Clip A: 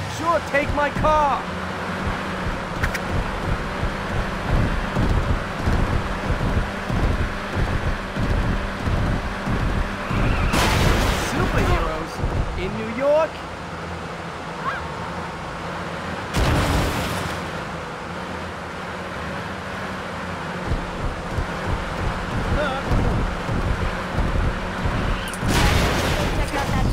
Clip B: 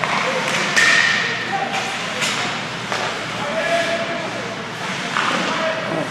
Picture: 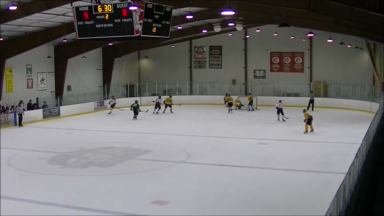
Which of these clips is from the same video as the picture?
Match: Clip B